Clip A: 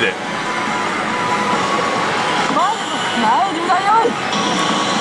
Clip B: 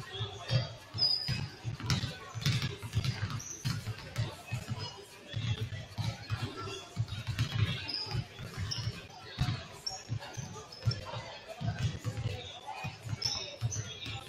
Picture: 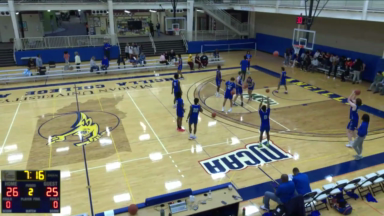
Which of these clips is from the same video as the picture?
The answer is B